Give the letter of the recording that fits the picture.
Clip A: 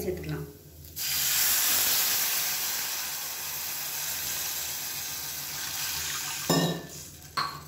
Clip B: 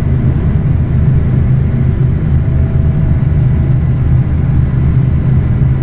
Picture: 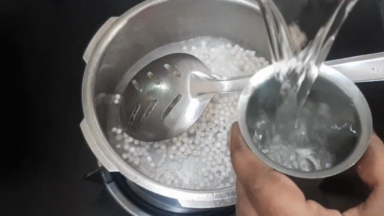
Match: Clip A